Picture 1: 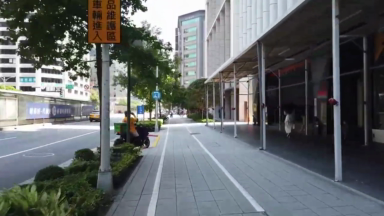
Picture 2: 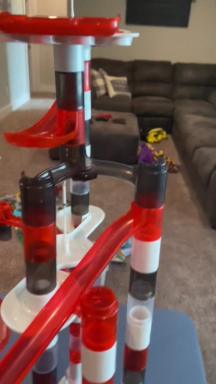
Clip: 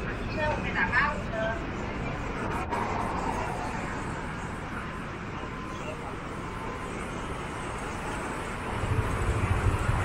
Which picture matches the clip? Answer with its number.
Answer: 1